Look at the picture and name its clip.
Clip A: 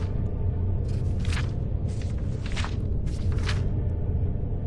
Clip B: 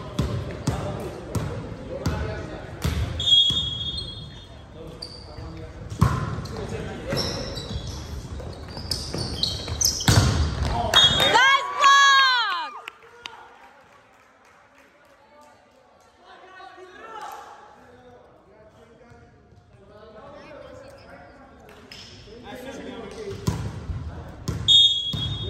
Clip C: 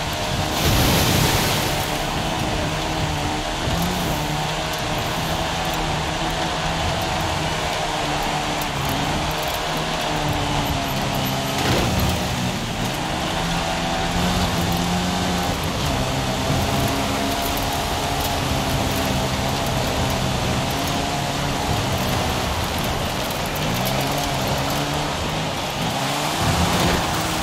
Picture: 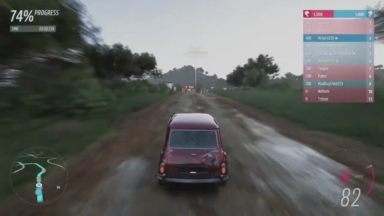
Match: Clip C